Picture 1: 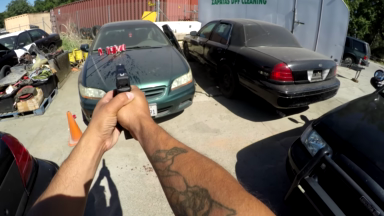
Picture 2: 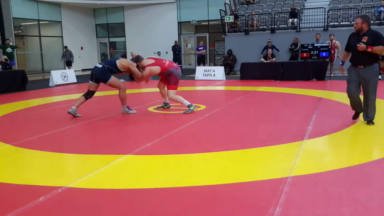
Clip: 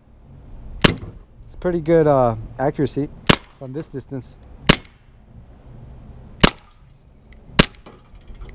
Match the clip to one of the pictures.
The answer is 1